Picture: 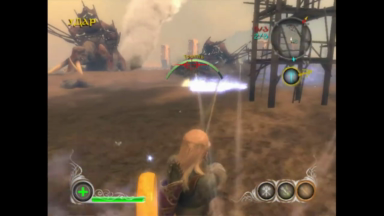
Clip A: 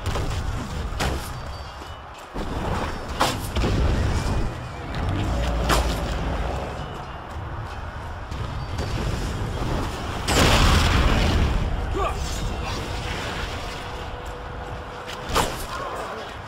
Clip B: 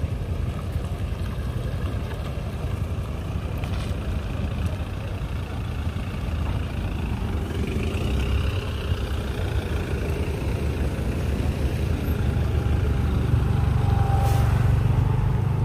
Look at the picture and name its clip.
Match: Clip A